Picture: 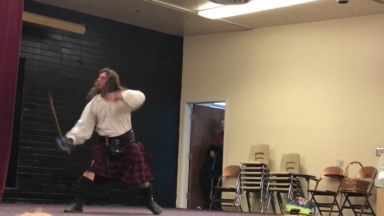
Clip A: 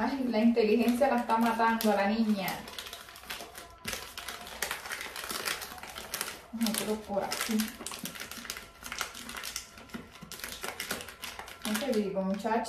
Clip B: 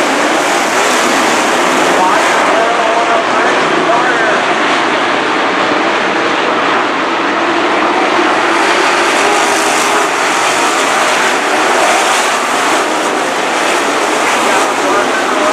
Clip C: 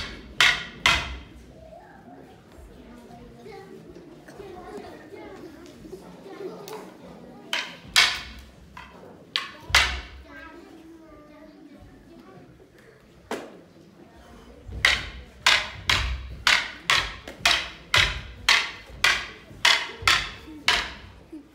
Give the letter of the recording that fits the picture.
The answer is C